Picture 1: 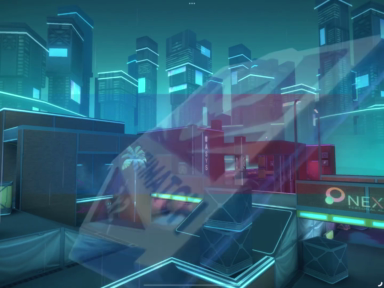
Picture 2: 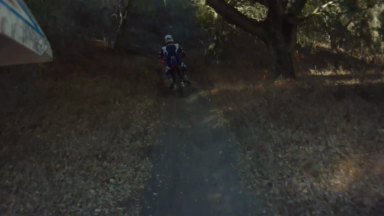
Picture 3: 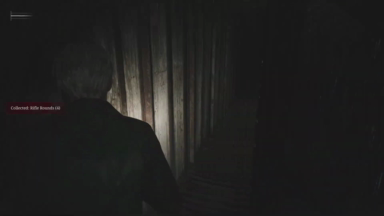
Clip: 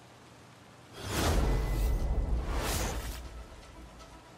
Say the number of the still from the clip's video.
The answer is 1